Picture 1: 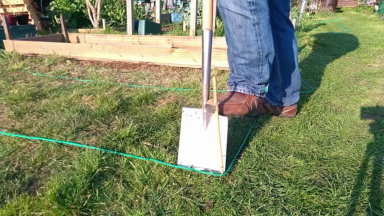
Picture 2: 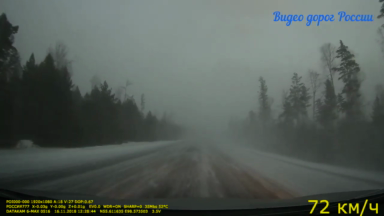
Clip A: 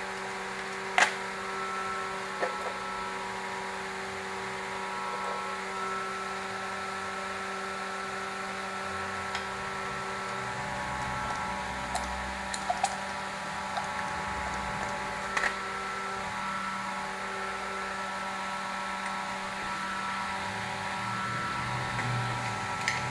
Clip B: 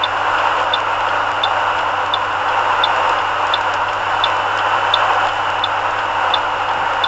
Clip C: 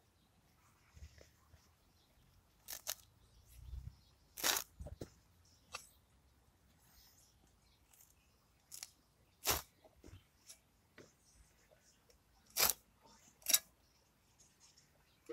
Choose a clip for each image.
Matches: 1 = C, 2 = B